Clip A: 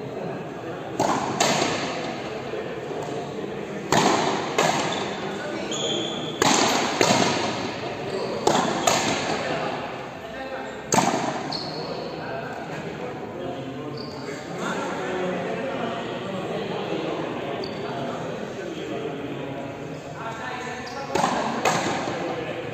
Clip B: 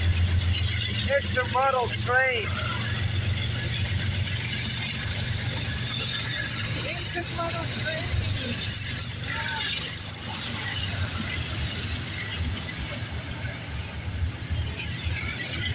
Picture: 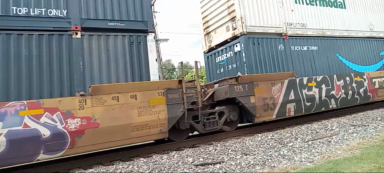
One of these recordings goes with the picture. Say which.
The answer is B